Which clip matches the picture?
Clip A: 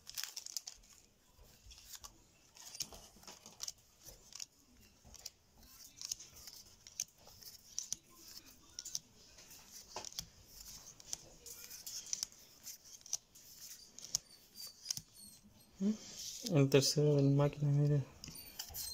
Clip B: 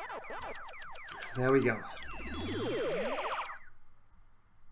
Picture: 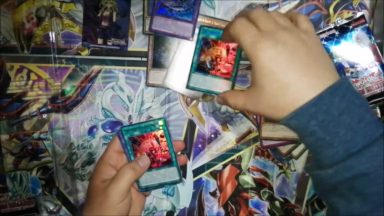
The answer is A